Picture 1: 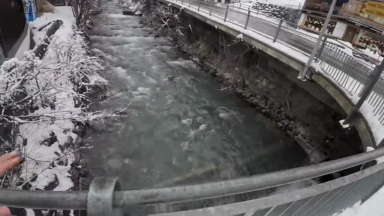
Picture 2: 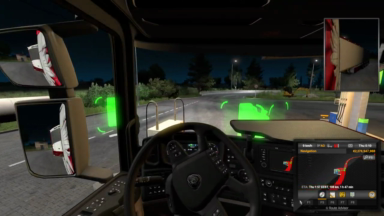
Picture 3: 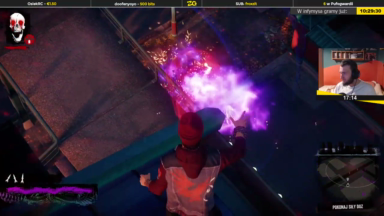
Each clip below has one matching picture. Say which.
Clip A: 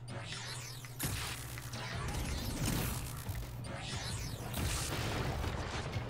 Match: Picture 3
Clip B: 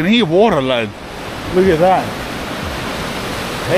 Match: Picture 1